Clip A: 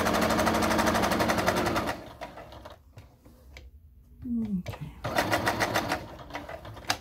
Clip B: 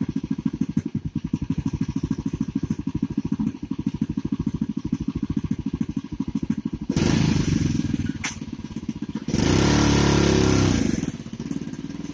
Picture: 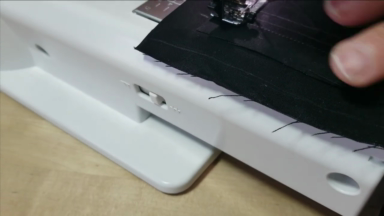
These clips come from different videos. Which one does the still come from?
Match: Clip A